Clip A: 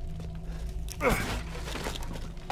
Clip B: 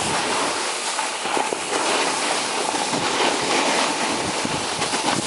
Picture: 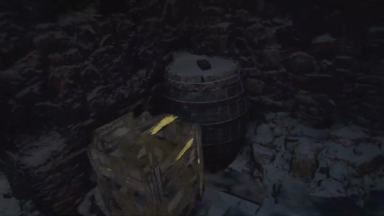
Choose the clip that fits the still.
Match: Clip A